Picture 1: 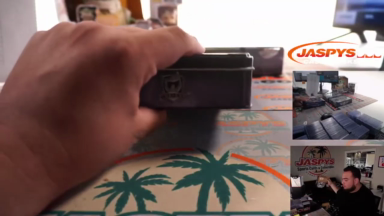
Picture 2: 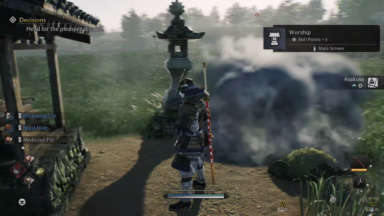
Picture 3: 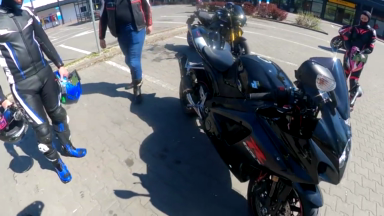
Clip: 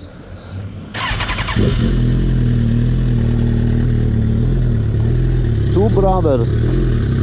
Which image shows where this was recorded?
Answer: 3